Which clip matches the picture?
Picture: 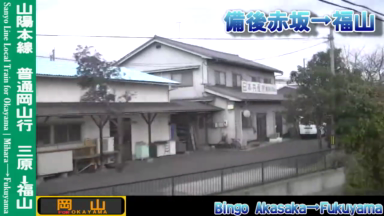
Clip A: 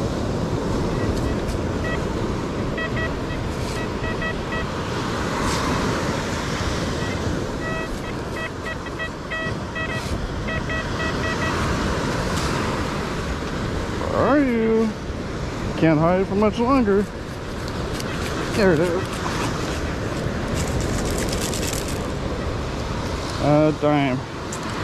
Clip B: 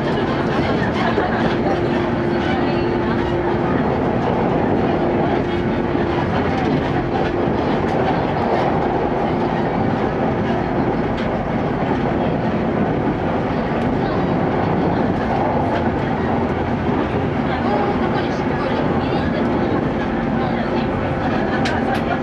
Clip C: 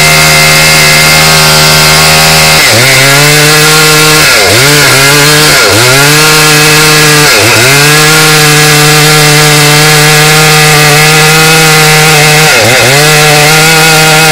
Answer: B